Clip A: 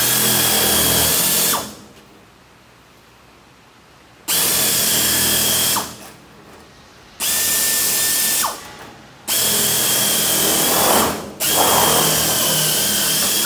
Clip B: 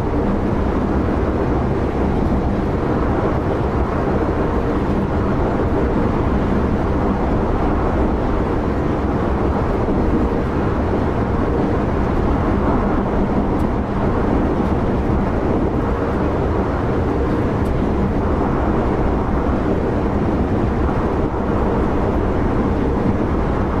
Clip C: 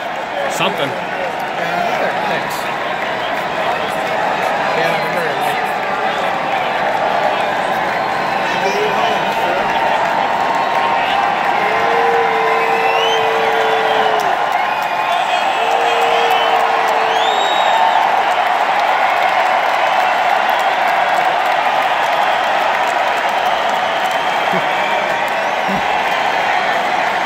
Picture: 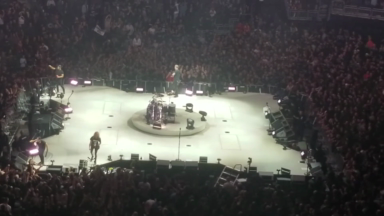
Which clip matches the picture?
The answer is C